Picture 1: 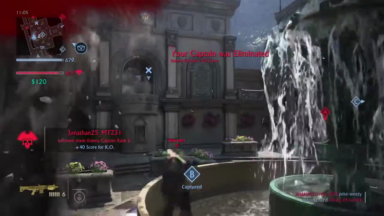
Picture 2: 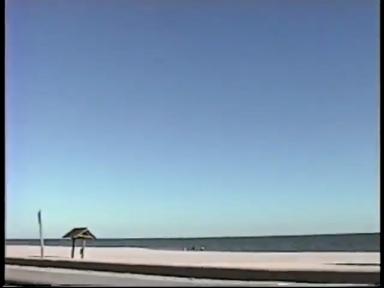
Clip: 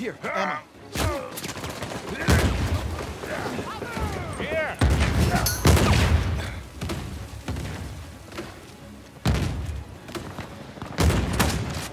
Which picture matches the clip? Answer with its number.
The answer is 1